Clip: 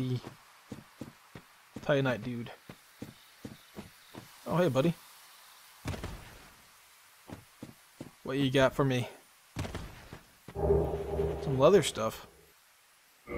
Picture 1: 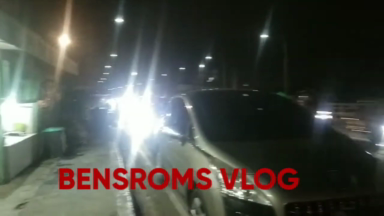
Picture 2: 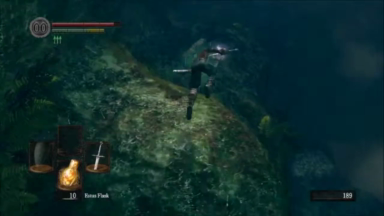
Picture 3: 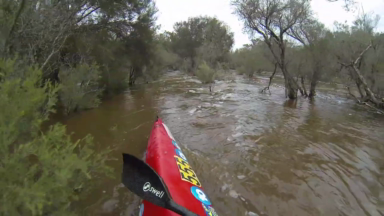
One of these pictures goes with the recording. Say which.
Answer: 2